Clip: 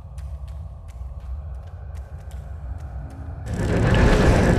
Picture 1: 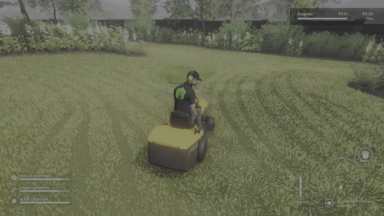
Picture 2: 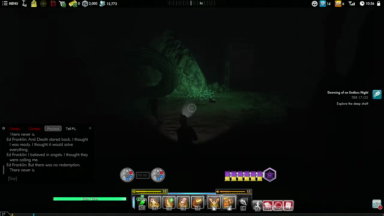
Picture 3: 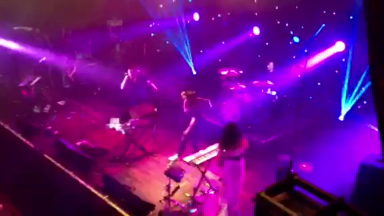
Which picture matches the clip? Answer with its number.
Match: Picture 2